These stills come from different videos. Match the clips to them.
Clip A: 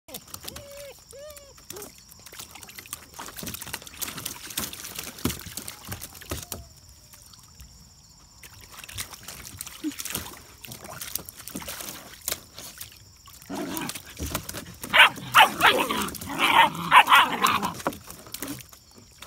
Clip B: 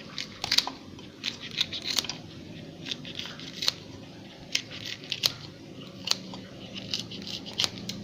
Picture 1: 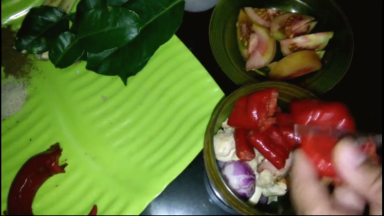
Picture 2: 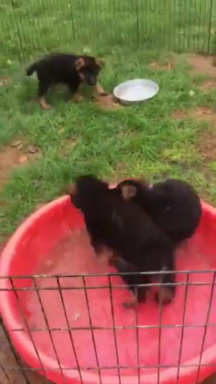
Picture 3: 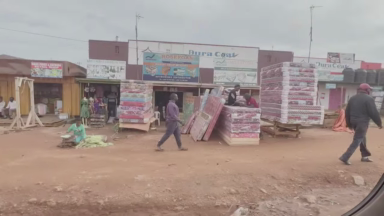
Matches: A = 2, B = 1